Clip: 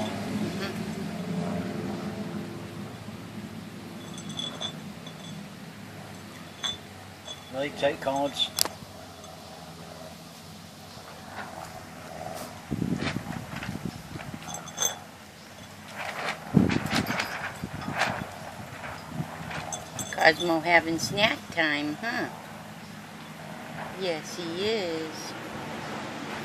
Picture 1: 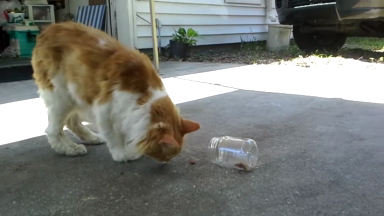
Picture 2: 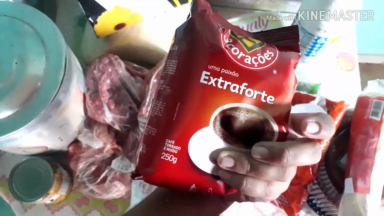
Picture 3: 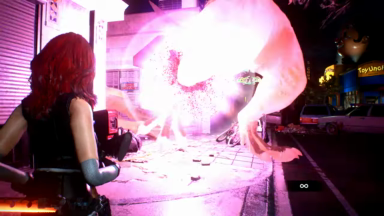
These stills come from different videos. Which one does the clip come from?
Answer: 1